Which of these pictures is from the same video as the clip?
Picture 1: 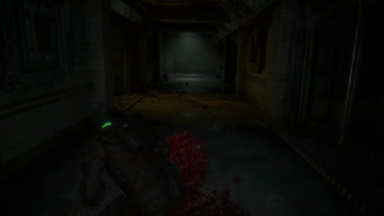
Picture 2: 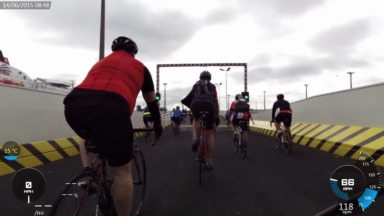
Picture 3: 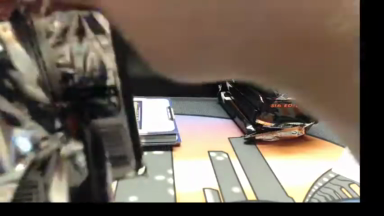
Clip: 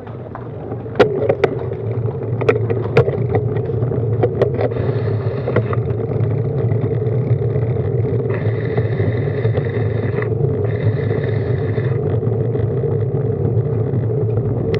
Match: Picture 2